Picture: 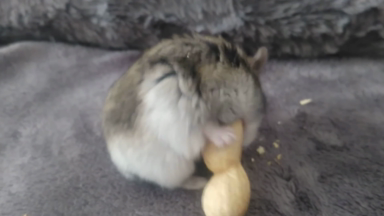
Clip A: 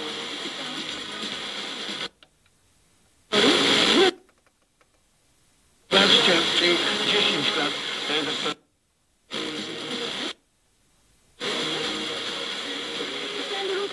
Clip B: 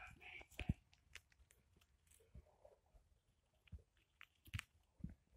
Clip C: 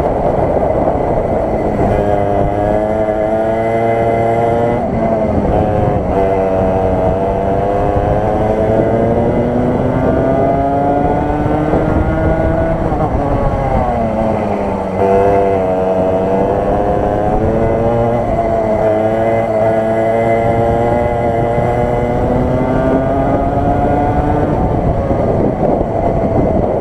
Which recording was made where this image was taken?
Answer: B